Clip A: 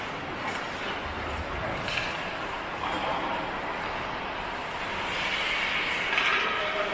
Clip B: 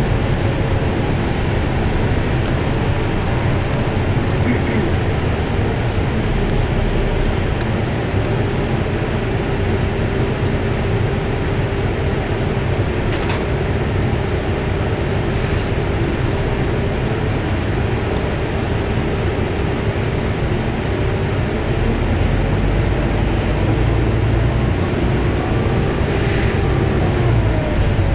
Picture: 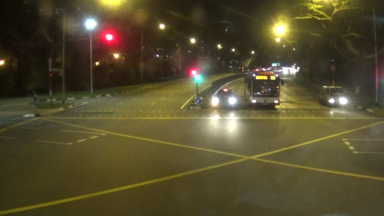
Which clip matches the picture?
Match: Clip B